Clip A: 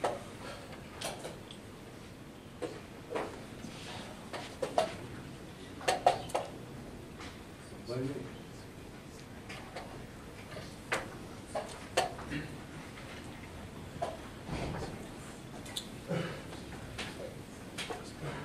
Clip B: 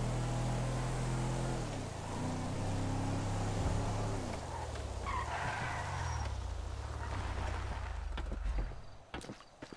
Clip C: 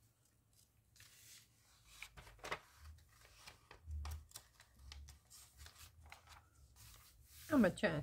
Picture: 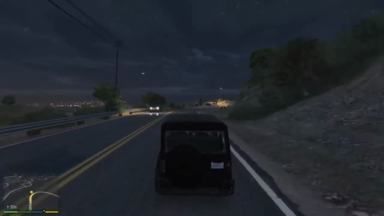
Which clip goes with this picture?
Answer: B